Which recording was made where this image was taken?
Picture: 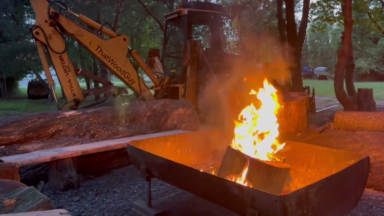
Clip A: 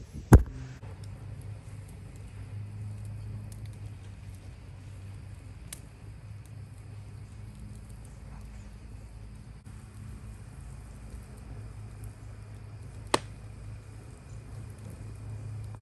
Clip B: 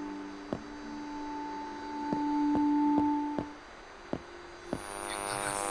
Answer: A